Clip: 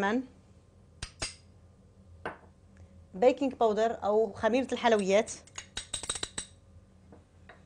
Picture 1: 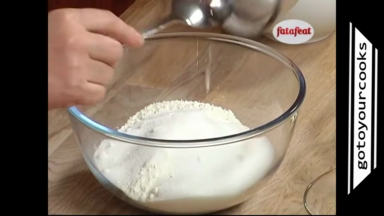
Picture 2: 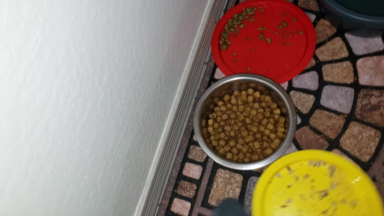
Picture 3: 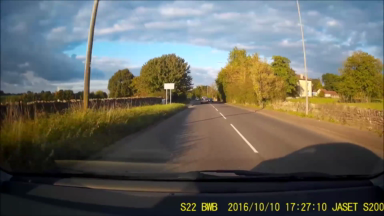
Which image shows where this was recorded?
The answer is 1